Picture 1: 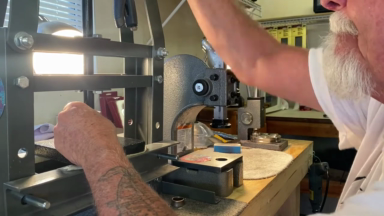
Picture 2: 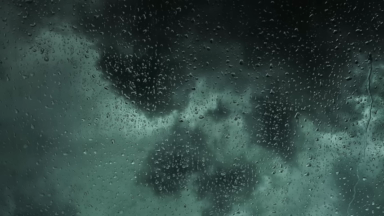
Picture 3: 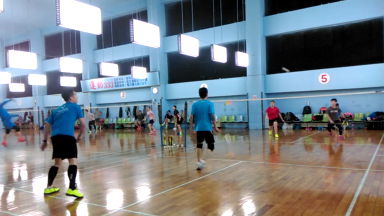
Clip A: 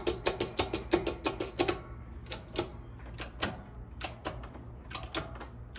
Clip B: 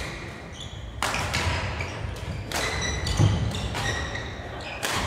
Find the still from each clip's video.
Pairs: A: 1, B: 3